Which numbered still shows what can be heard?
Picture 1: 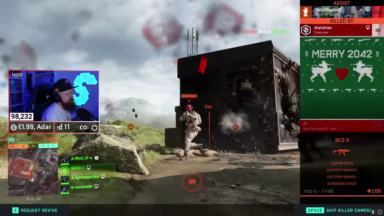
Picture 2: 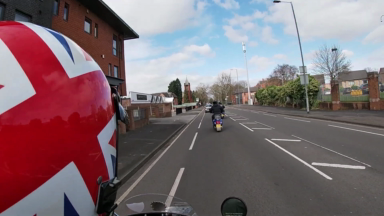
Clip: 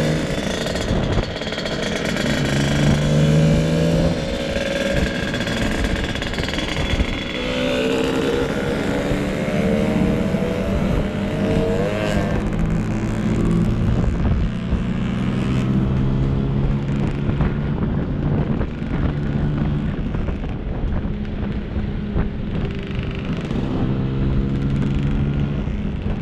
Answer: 2